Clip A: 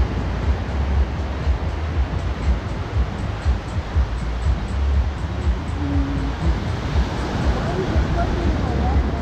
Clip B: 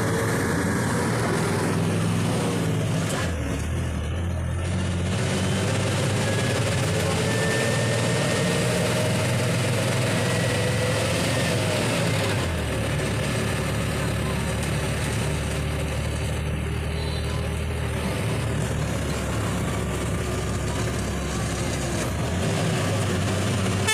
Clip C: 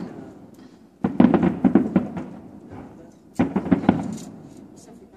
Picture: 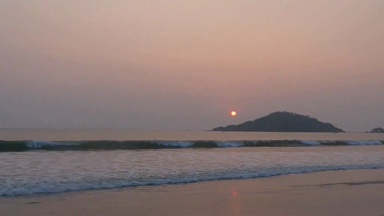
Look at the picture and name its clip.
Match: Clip A